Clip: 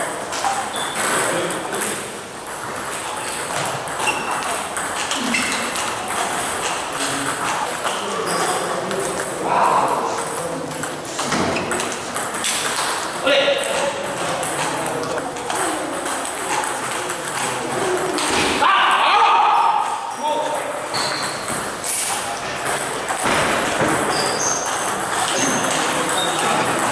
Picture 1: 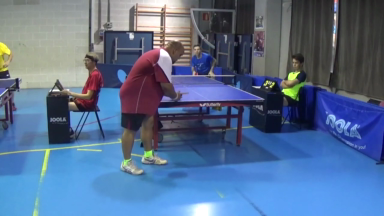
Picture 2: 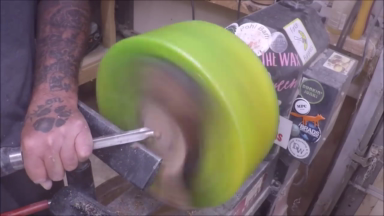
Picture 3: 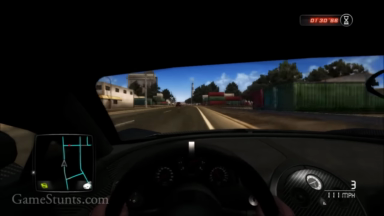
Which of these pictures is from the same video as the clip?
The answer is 1